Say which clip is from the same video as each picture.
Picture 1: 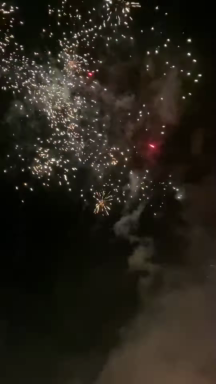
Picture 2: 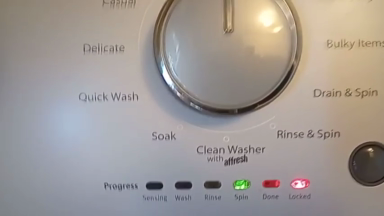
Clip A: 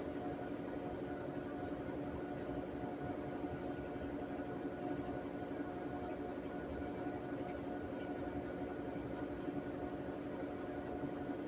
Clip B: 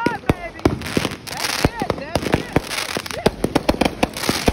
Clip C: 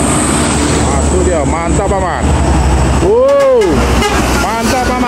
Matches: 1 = B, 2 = A